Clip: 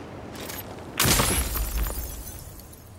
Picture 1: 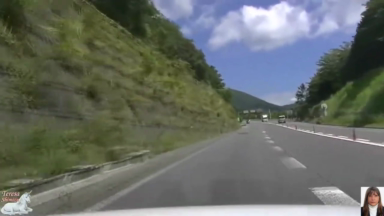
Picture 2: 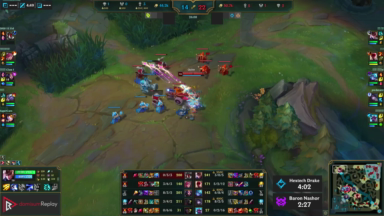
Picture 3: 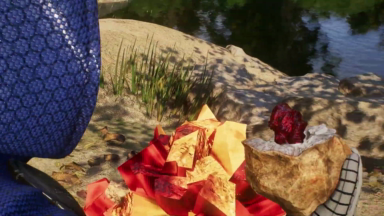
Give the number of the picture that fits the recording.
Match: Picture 3